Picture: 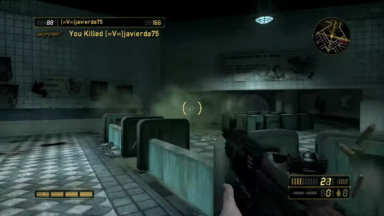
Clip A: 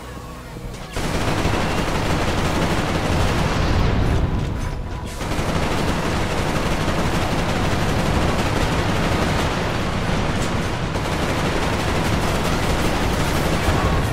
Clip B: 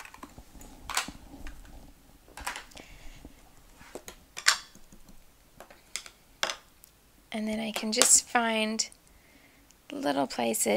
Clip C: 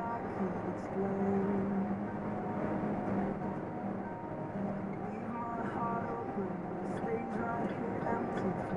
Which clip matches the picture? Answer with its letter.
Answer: A